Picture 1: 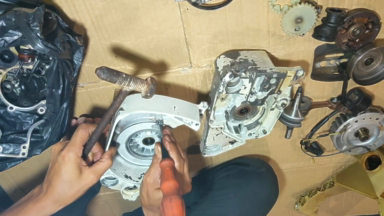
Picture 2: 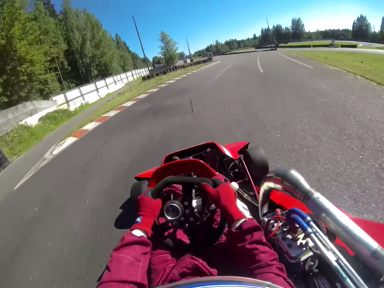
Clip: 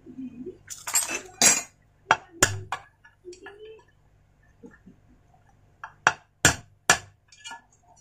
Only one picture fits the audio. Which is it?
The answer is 1